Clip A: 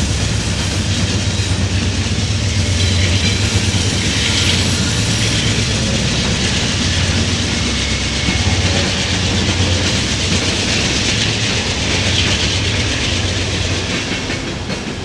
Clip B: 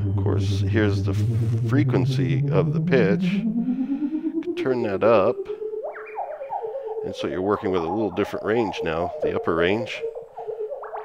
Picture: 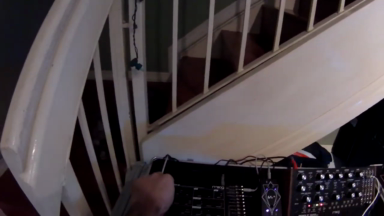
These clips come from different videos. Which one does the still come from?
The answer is B